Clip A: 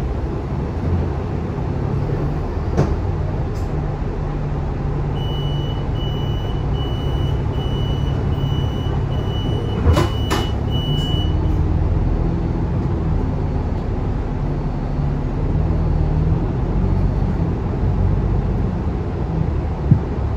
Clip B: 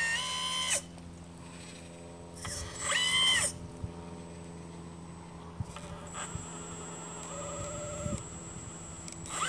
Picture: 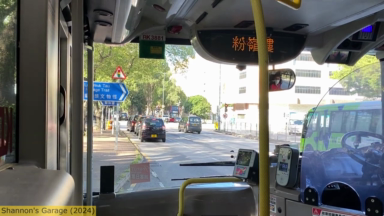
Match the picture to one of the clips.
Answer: A